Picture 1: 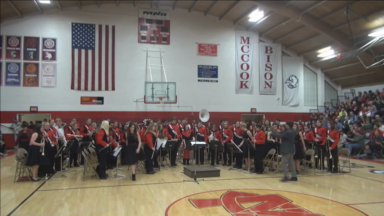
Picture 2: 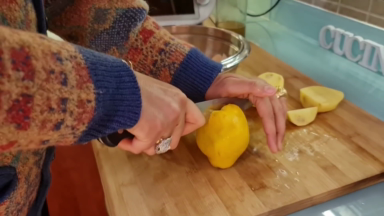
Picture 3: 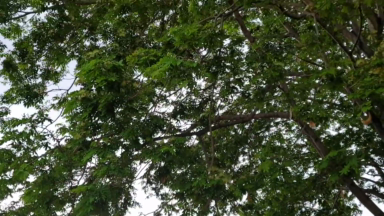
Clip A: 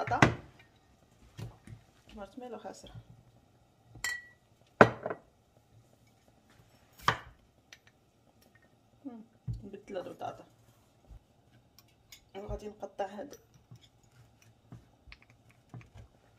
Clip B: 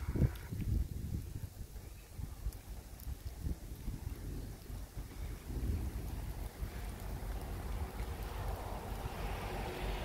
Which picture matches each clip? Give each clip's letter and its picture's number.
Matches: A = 2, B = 3